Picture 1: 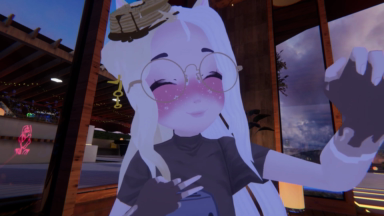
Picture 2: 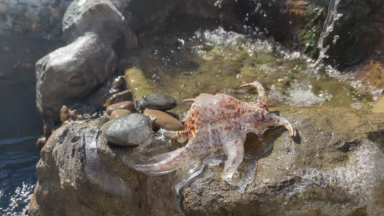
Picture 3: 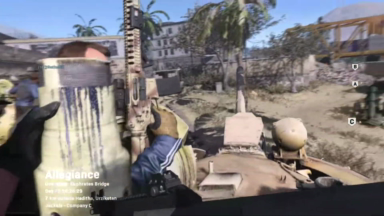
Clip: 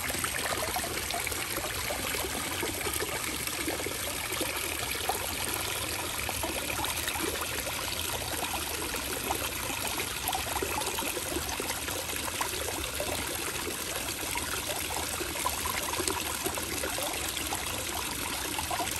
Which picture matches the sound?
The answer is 2